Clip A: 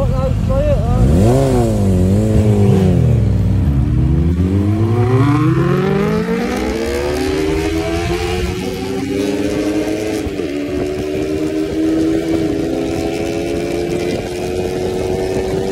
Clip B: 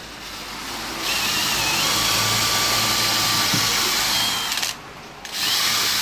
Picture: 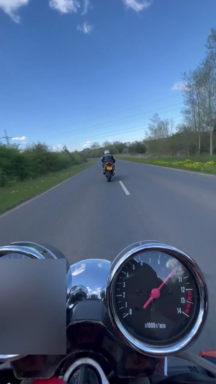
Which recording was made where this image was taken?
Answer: A